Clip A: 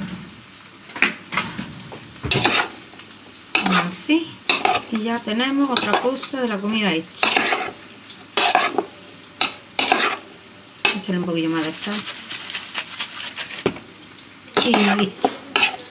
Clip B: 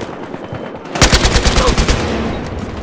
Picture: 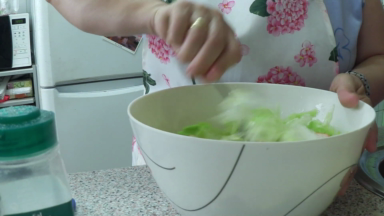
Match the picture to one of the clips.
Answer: A